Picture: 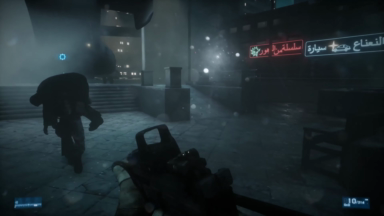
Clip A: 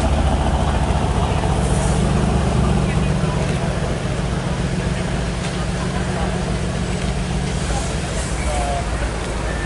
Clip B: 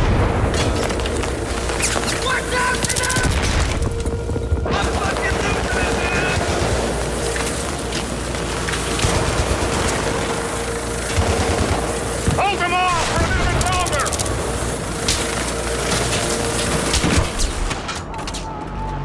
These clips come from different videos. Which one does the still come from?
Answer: B